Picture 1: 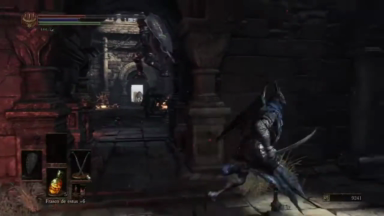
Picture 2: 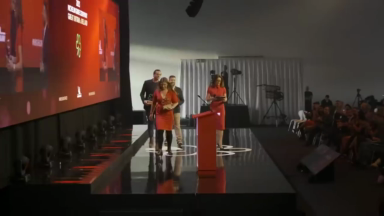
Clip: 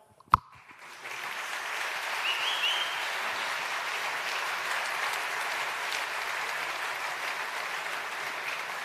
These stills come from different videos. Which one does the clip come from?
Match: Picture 2